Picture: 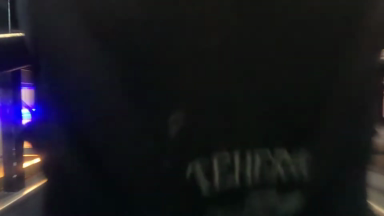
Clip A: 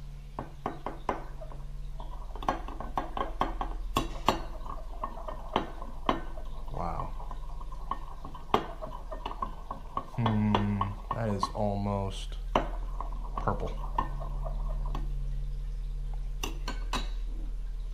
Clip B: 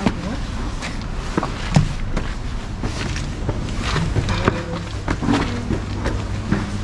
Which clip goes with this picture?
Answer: B